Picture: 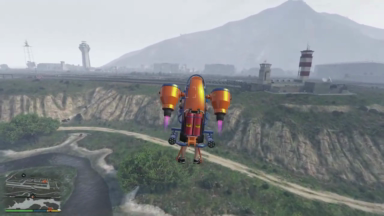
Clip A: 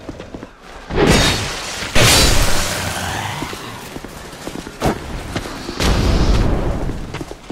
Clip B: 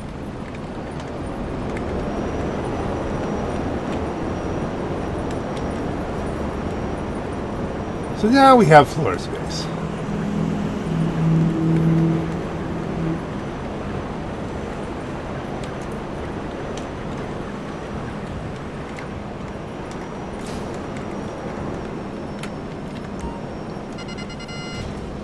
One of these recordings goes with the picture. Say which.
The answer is B